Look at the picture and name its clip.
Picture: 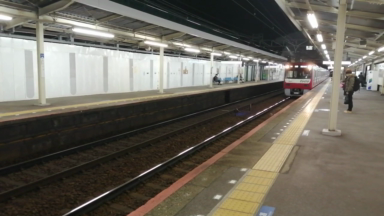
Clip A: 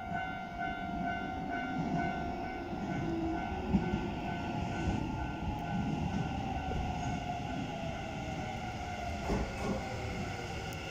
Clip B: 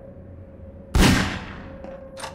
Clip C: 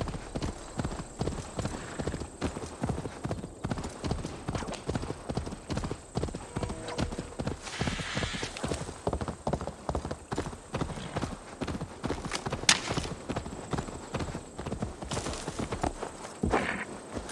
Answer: A